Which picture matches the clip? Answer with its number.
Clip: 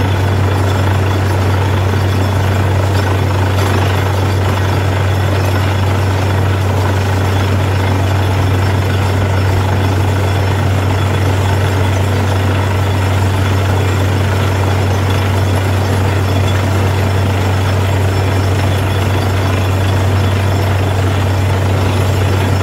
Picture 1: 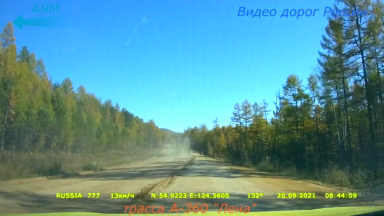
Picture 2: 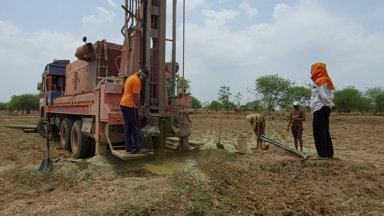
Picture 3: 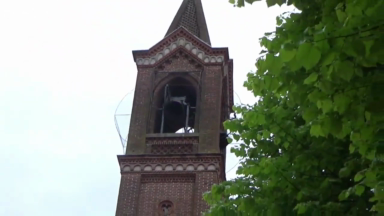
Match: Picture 2